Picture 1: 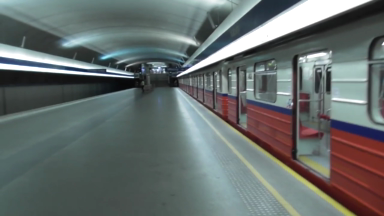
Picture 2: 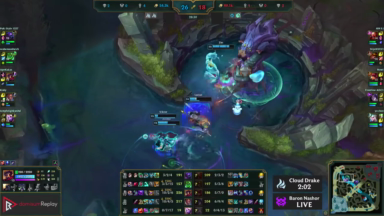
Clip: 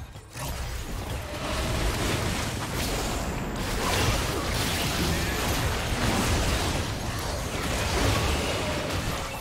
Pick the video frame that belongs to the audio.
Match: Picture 2